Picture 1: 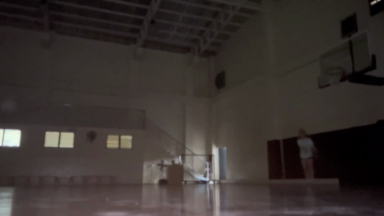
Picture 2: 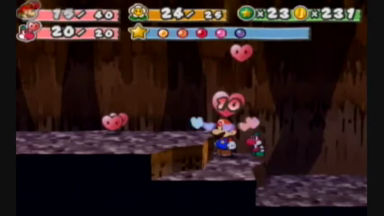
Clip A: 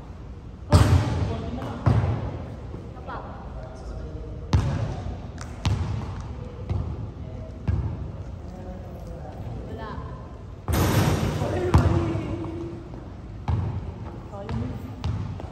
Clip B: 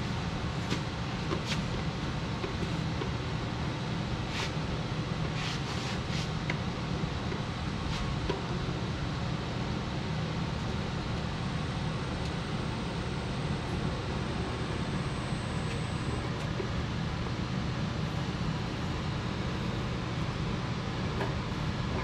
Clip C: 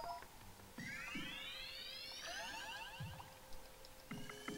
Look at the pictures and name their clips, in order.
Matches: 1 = A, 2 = C